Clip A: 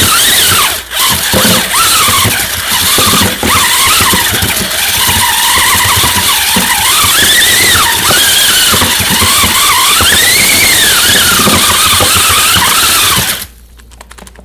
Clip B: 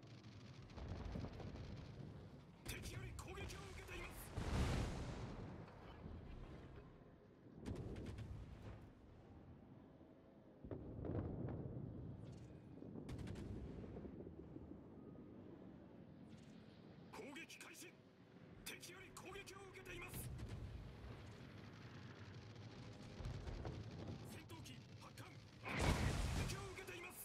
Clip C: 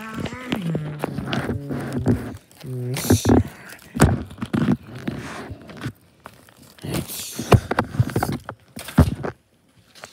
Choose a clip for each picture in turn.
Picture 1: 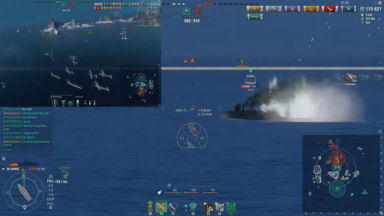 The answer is B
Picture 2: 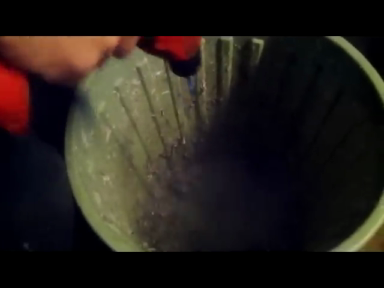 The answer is A